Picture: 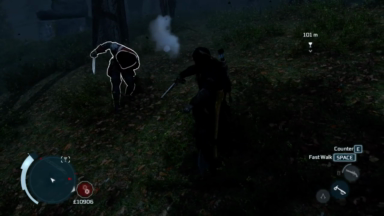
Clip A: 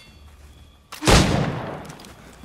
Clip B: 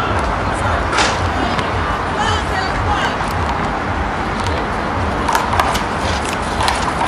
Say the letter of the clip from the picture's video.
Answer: A